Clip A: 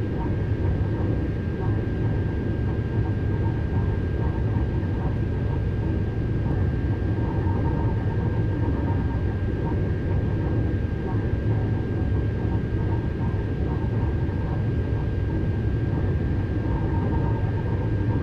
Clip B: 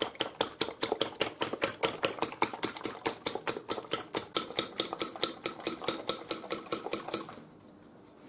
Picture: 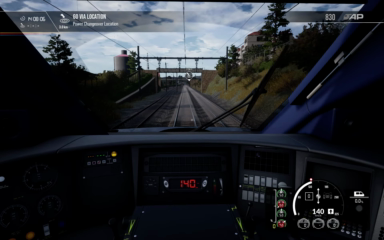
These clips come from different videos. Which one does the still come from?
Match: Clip A